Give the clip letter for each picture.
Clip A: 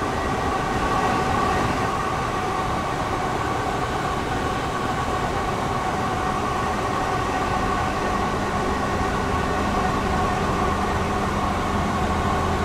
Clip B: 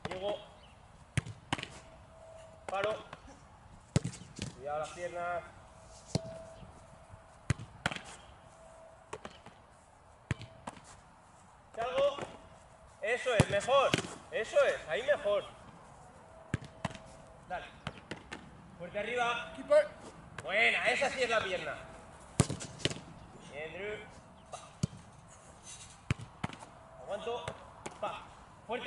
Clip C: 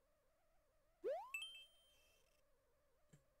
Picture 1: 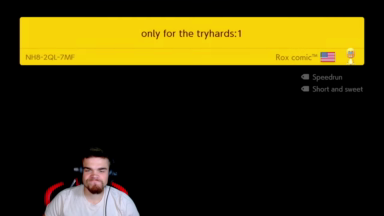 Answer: C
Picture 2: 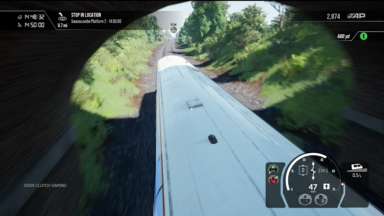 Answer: A